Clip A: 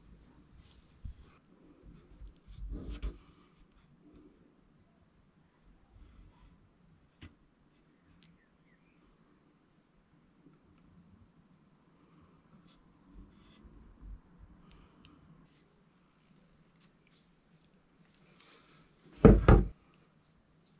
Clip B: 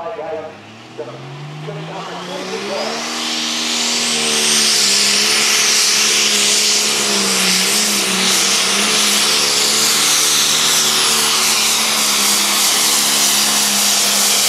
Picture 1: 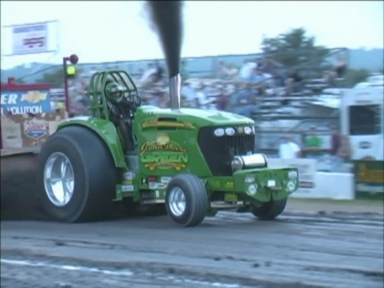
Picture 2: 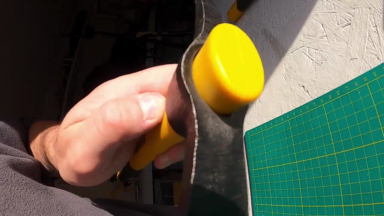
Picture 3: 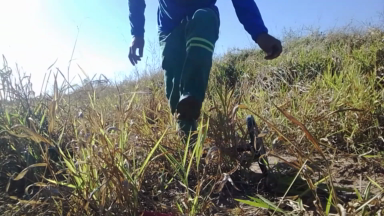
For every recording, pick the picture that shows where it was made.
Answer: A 2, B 1